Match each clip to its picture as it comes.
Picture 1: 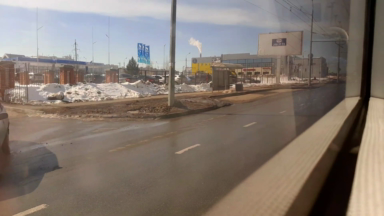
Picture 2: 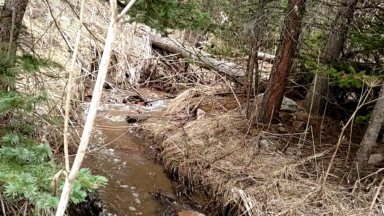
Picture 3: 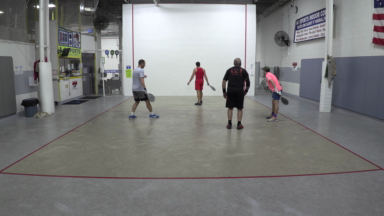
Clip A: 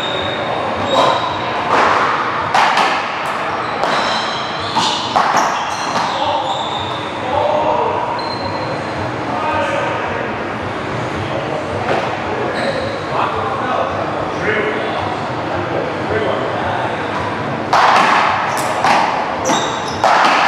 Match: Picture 3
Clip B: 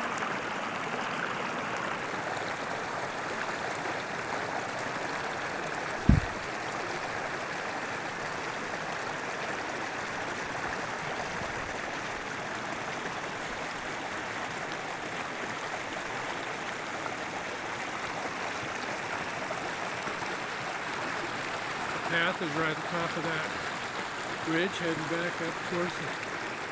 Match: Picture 2